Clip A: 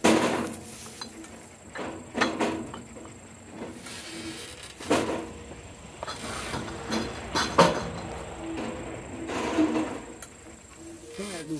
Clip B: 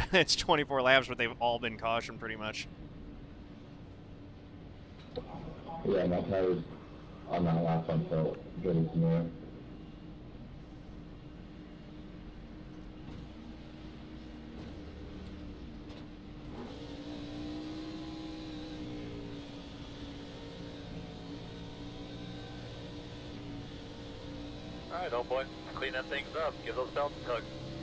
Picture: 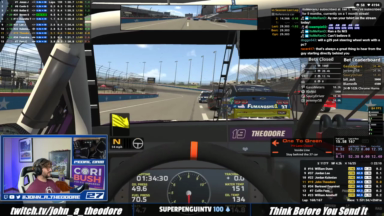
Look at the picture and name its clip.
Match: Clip B